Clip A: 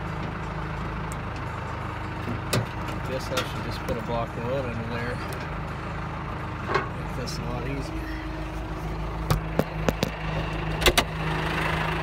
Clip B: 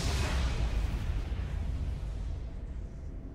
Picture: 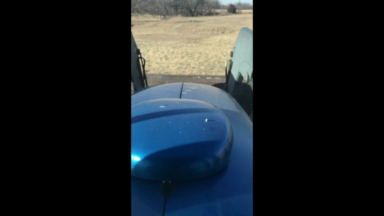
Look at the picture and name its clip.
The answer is A